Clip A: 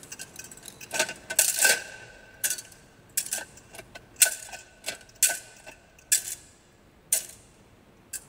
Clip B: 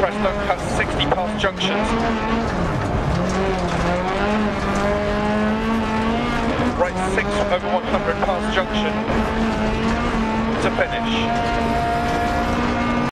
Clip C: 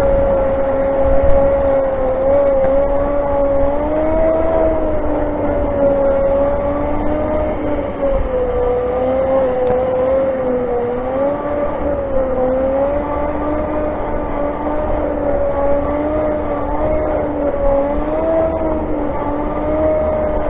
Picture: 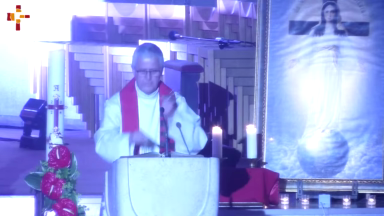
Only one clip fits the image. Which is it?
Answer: A